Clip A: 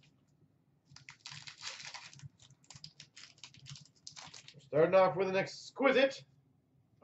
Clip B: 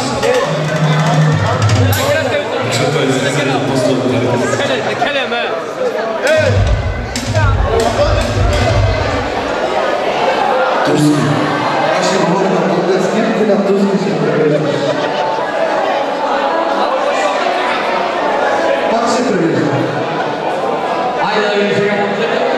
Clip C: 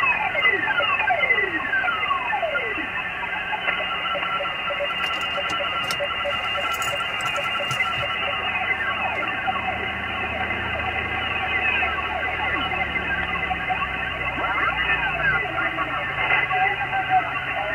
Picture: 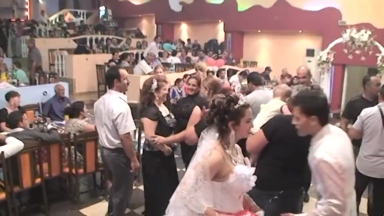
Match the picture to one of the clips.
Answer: B